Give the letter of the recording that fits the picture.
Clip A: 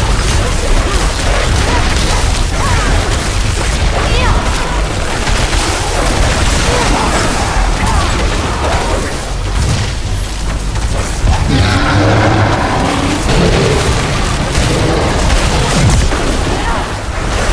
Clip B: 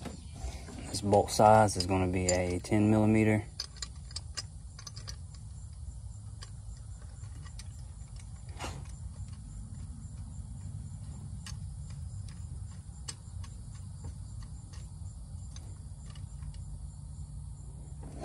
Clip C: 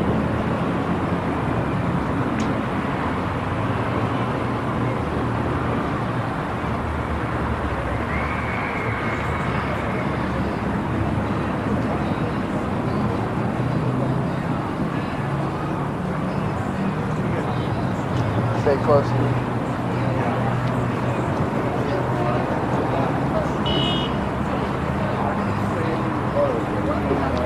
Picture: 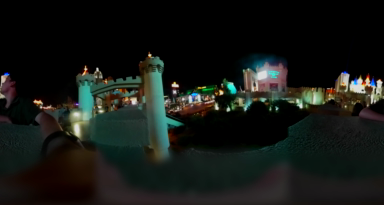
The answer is C